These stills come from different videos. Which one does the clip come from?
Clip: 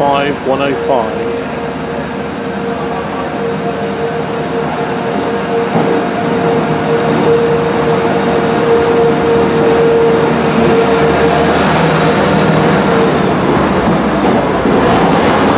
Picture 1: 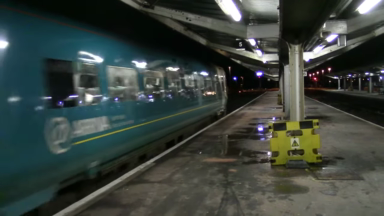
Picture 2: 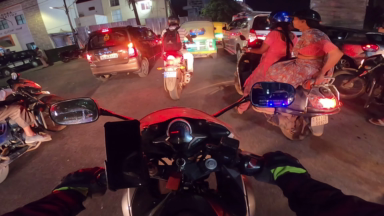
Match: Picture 1